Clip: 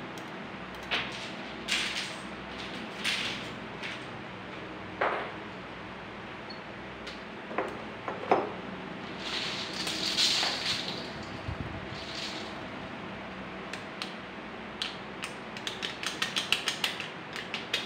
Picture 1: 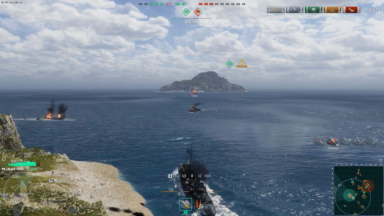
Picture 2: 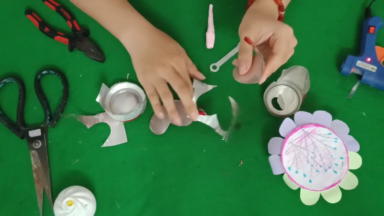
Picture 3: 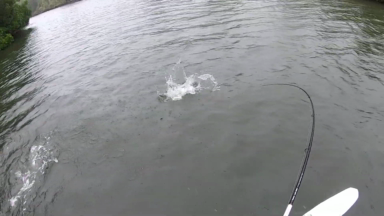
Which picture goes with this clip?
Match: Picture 2